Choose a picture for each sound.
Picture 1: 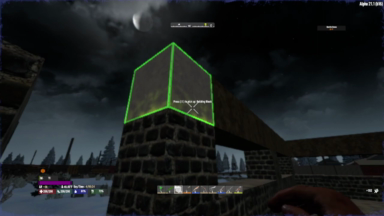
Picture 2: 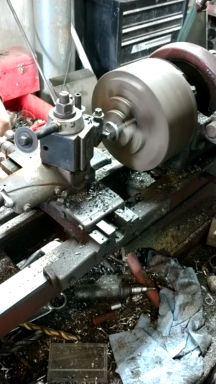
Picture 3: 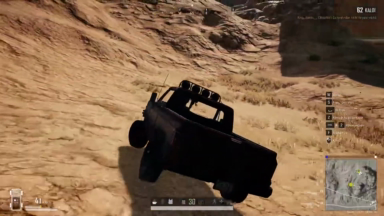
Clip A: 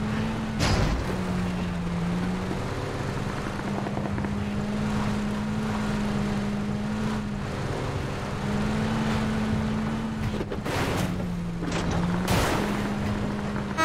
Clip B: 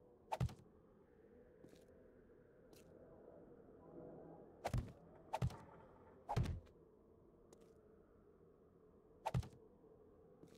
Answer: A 3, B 1